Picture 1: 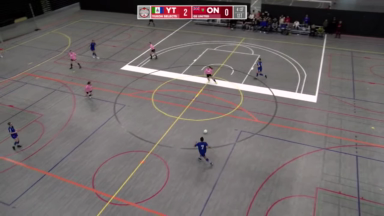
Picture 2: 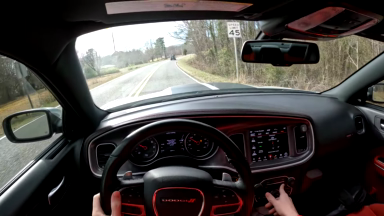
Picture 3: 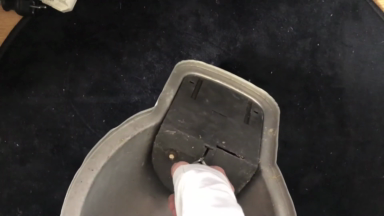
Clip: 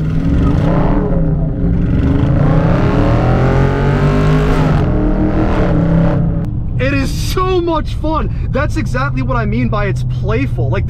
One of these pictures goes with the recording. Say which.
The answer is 2